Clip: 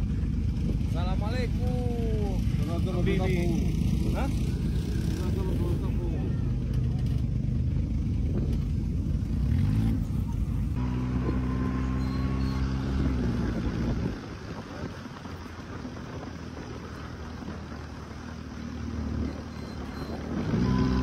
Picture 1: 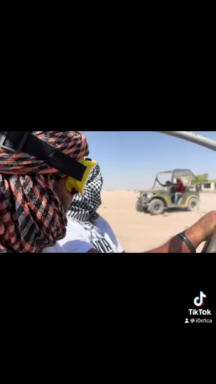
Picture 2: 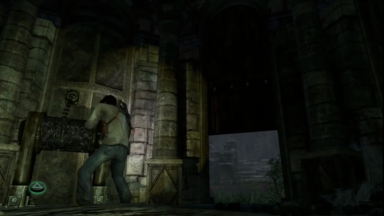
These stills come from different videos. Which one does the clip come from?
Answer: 1